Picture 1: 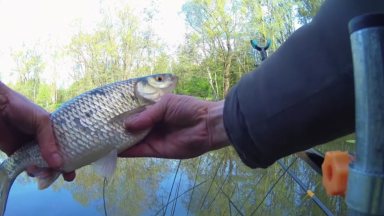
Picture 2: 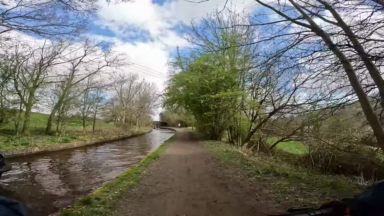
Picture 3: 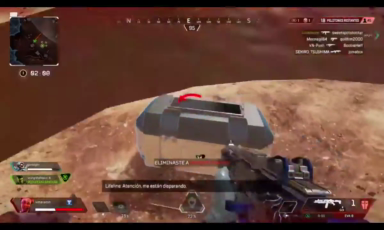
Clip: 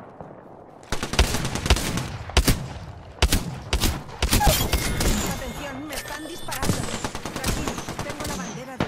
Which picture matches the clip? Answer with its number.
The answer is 3